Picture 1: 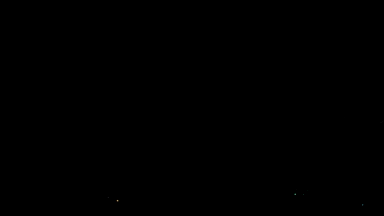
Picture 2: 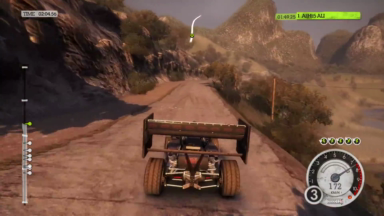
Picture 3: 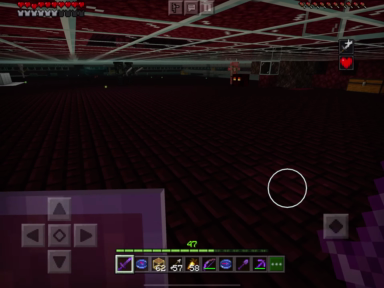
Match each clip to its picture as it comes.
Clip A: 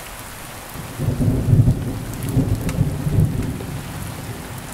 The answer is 1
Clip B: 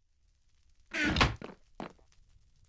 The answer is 3